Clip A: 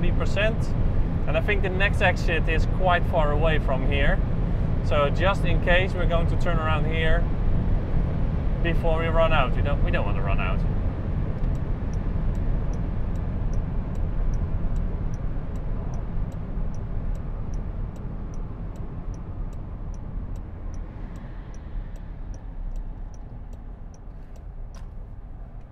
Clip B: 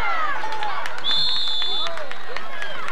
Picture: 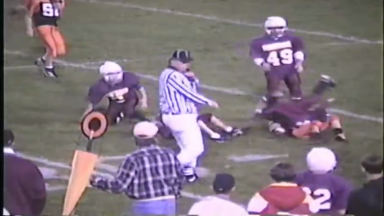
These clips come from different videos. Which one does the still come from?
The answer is B